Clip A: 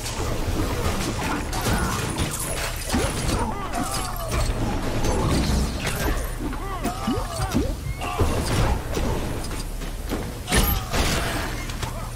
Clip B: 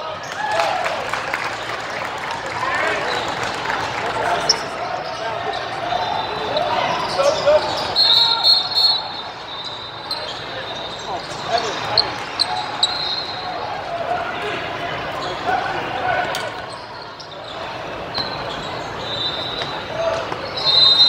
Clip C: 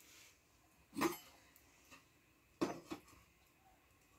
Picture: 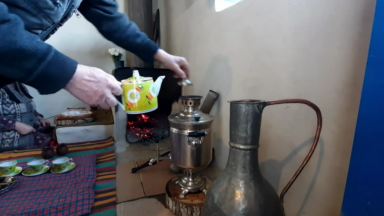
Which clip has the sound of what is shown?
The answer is C